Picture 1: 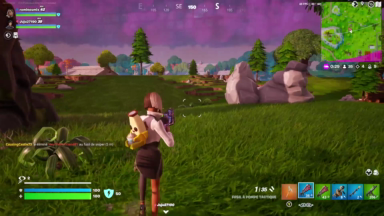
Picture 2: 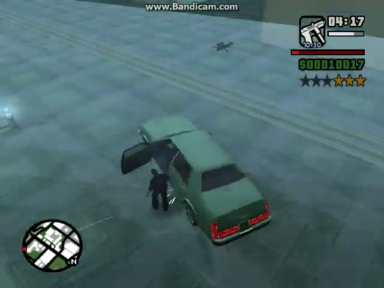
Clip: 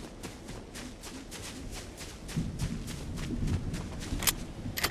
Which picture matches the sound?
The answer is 1